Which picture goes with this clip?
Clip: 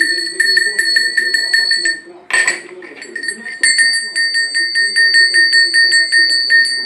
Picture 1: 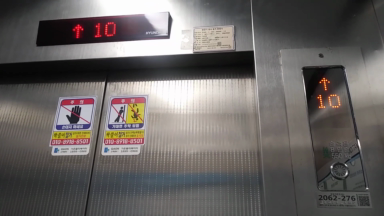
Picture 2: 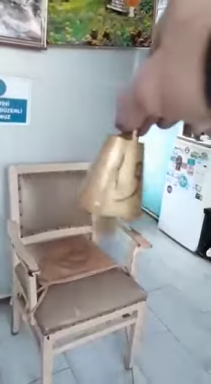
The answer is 2